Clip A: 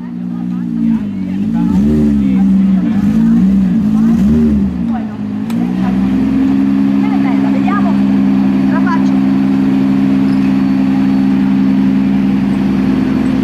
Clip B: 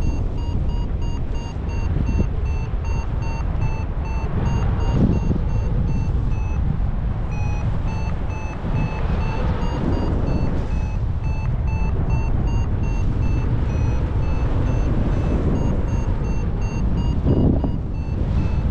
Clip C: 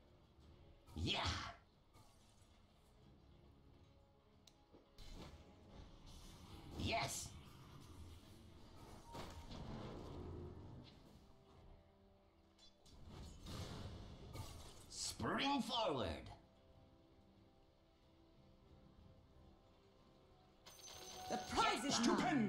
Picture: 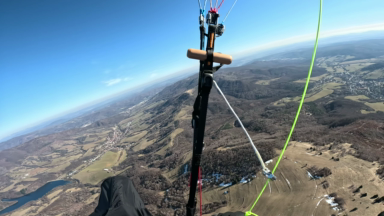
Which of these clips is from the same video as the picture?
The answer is B